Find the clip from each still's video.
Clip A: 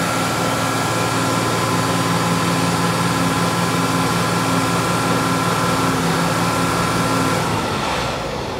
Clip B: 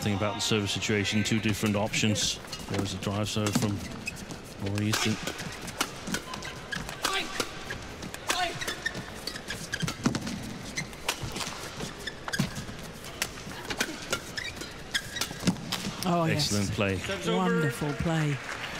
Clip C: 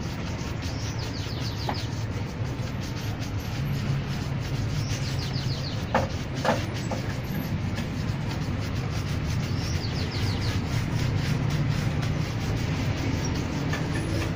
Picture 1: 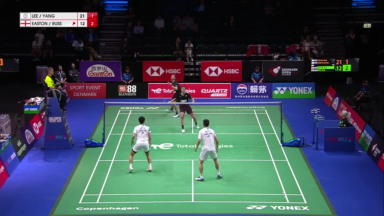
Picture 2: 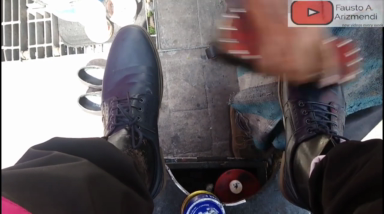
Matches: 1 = B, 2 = C